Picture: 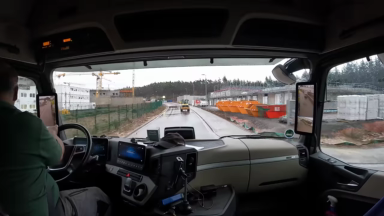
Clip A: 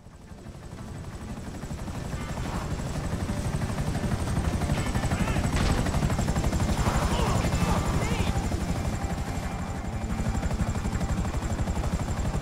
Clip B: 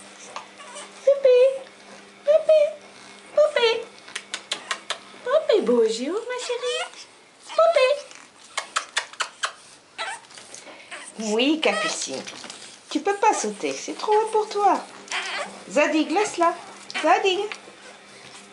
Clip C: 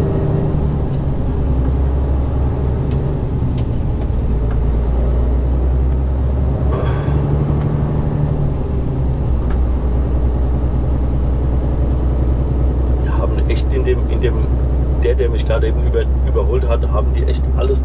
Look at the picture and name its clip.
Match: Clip C